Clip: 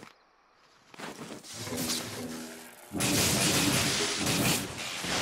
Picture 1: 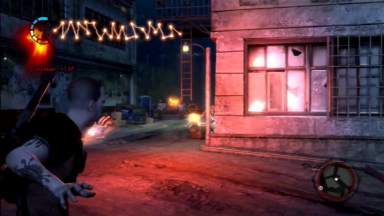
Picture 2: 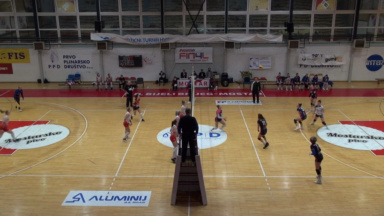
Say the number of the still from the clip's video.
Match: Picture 1